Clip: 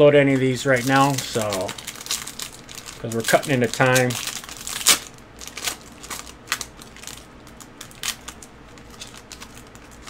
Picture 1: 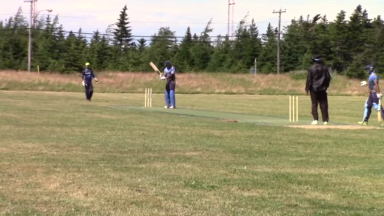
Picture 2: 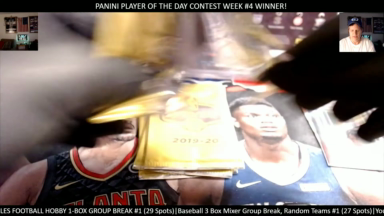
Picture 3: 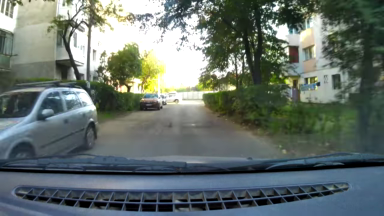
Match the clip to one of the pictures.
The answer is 2